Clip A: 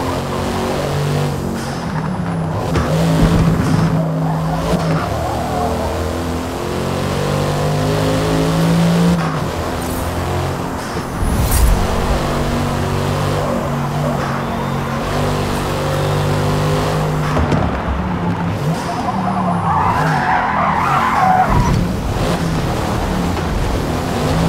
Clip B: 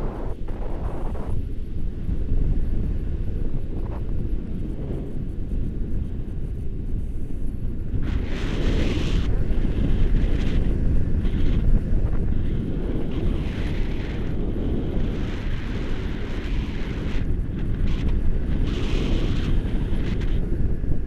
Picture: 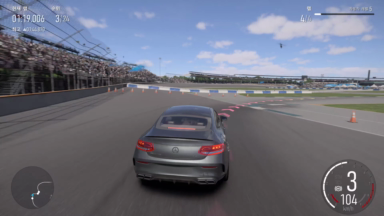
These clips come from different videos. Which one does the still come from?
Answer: A